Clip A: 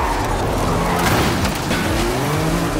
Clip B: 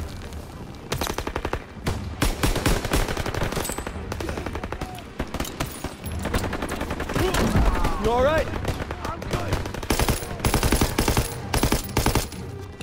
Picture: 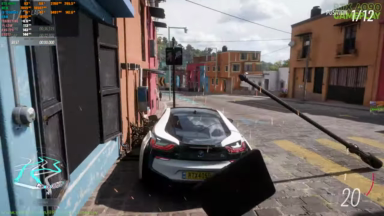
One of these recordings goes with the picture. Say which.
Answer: A